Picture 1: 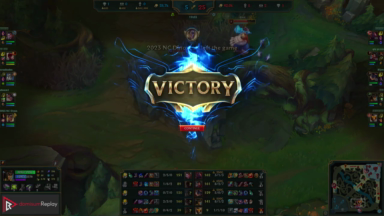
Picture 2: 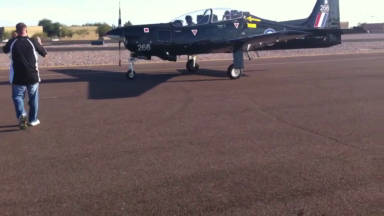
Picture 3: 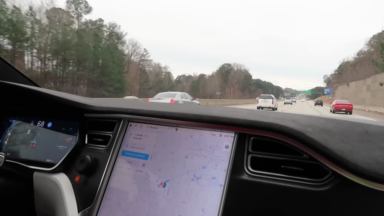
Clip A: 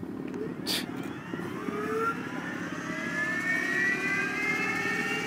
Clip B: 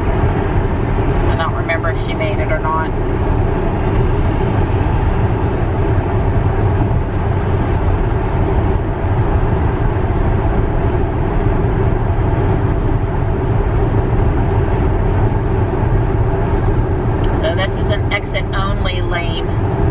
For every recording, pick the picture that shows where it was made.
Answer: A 2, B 3